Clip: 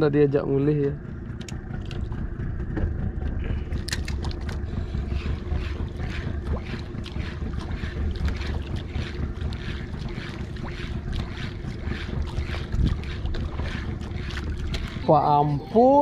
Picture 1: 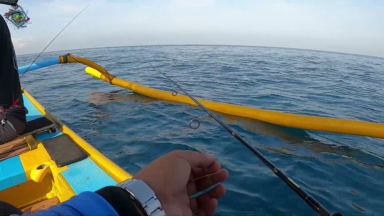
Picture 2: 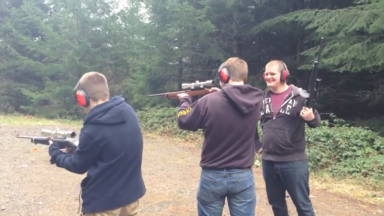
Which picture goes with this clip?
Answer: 1